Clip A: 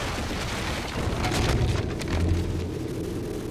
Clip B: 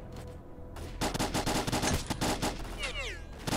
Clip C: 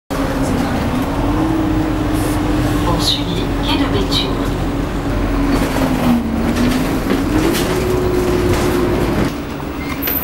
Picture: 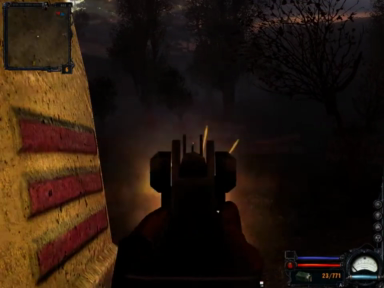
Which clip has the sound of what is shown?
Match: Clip B